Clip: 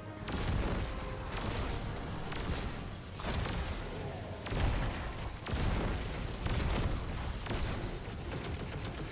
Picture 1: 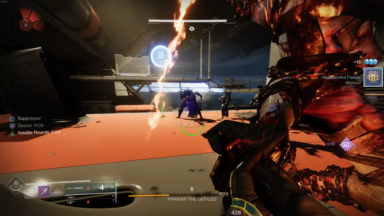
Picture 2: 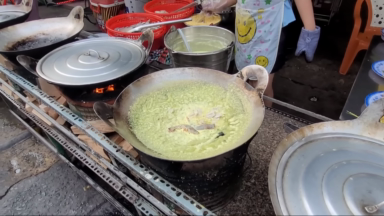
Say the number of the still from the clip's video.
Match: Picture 1